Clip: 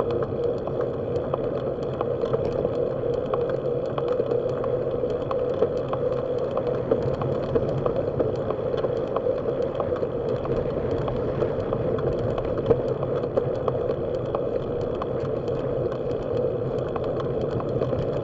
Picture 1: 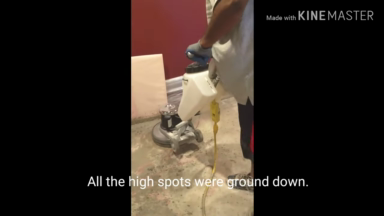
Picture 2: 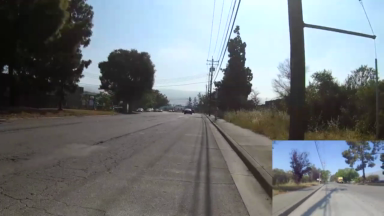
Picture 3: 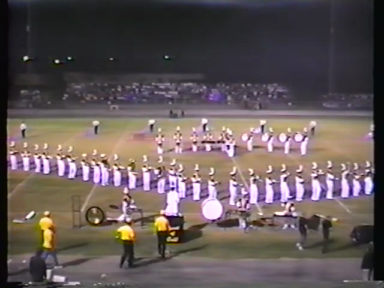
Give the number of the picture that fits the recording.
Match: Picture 2